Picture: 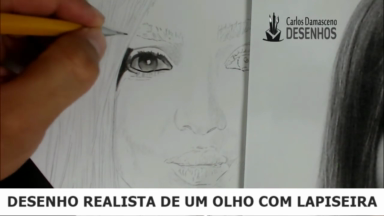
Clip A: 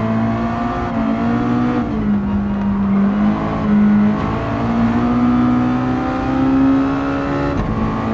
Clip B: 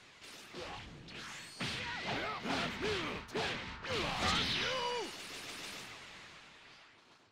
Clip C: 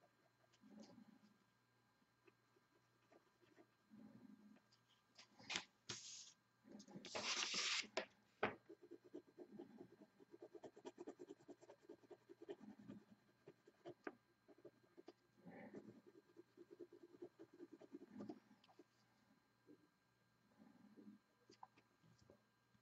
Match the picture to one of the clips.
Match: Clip C